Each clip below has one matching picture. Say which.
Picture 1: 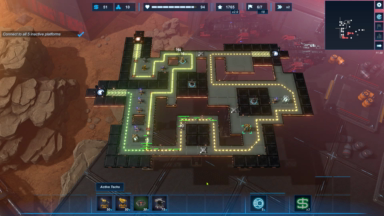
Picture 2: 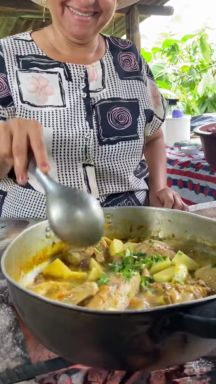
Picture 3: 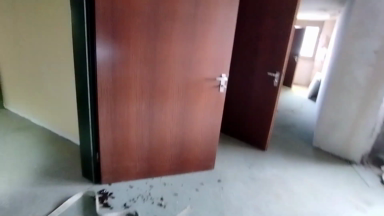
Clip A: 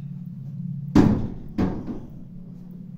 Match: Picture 3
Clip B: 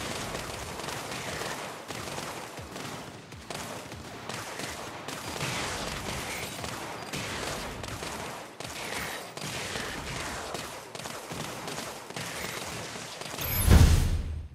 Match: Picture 1